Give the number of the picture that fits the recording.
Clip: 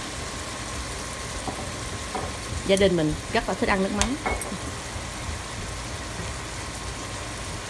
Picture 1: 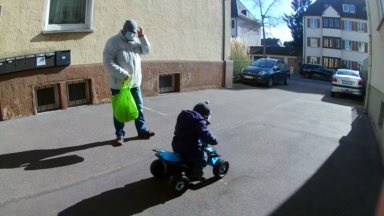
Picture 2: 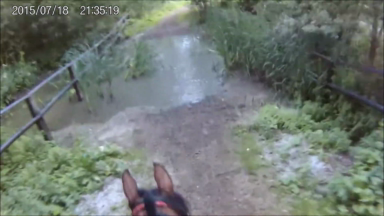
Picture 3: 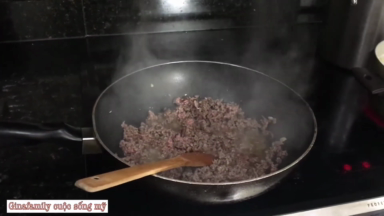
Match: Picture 3